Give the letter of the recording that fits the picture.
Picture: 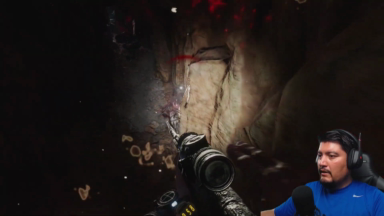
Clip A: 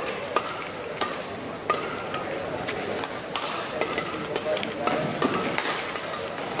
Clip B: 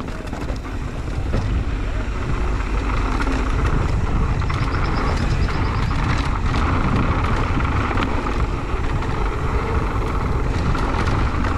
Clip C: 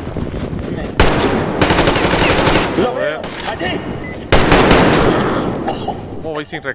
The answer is C